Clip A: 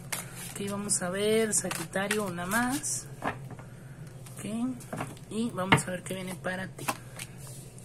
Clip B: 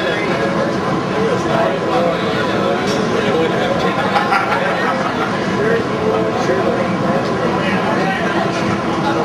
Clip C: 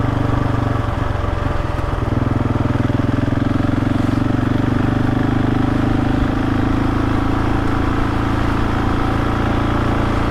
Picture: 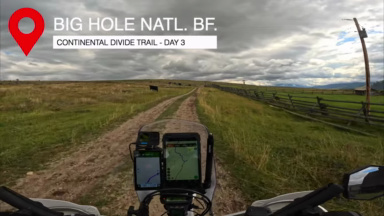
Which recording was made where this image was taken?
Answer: C